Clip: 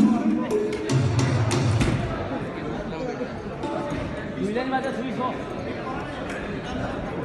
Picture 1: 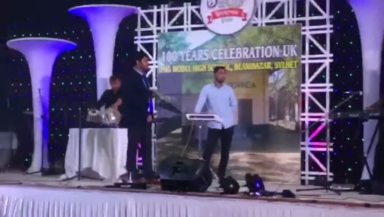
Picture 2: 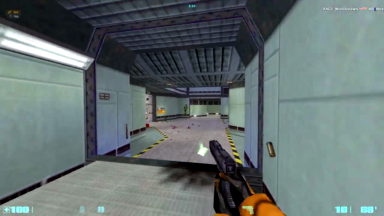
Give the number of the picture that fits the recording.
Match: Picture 1